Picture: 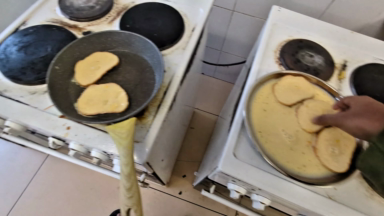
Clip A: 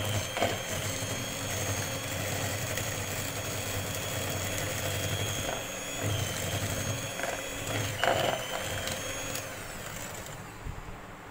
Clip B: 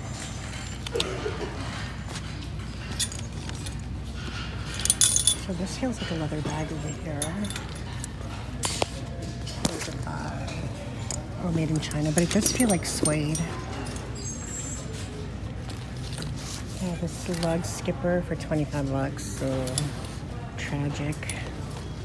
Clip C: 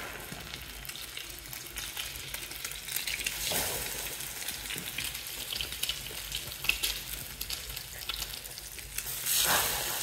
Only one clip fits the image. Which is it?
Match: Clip C